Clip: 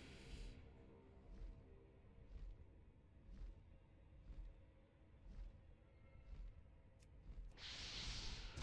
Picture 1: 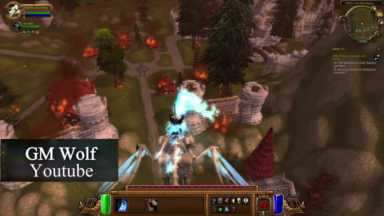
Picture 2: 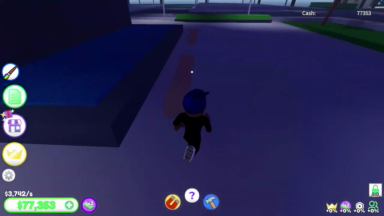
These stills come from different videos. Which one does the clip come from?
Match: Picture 1